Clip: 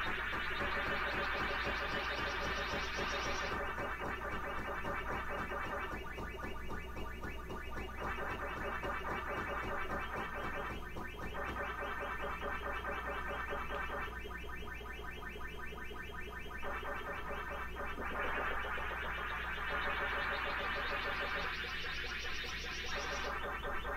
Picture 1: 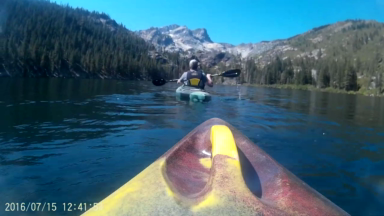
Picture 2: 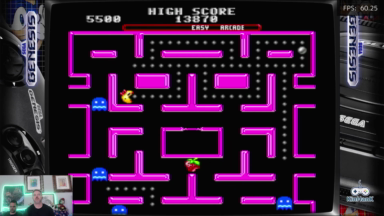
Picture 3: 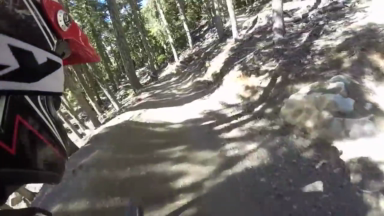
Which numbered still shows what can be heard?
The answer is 2